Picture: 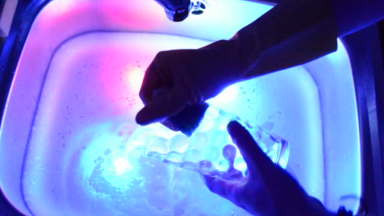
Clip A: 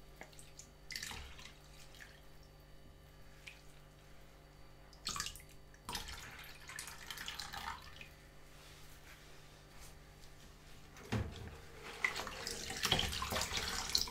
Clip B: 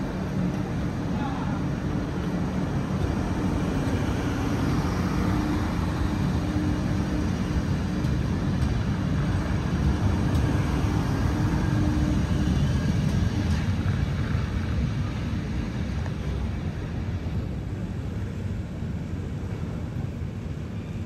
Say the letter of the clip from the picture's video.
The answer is A